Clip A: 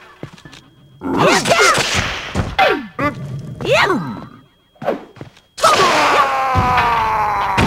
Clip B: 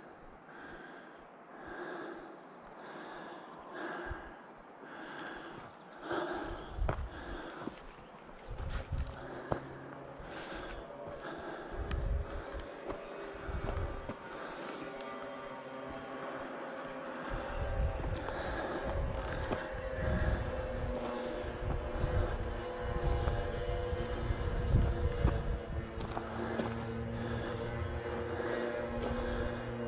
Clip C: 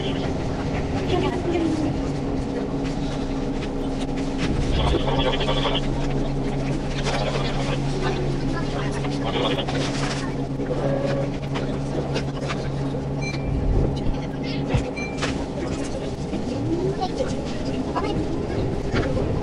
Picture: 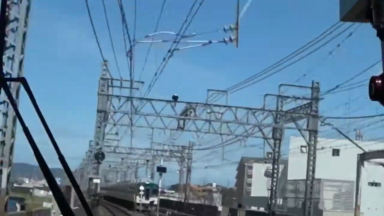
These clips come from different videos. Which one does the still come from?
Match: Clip C